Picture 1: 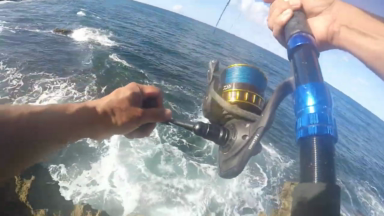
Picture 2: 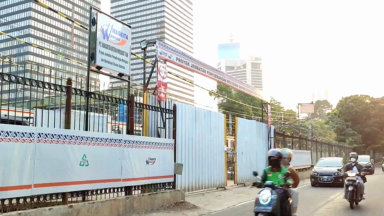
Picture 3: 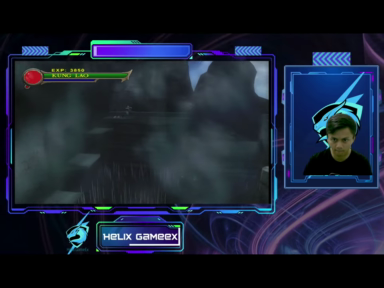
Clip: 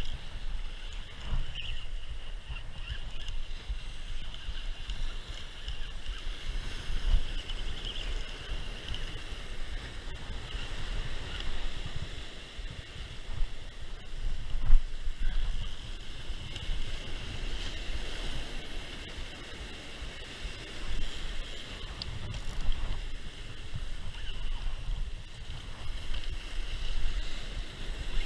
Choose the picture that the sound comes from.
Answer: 1